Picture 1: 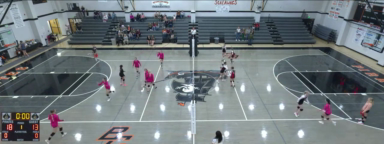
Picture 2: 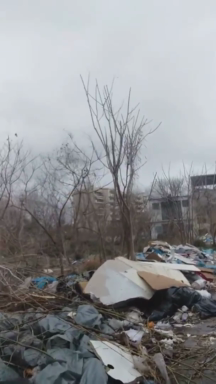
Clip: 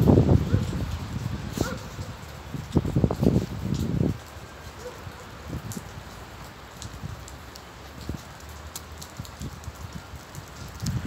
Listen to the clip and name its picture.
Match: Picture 2